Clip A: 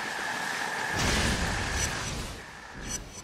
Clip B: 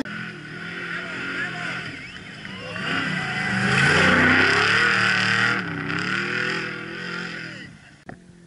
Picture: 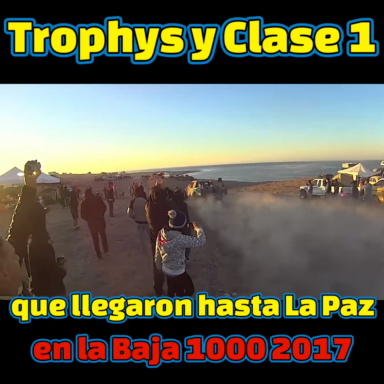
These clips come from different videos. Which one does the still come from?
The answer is B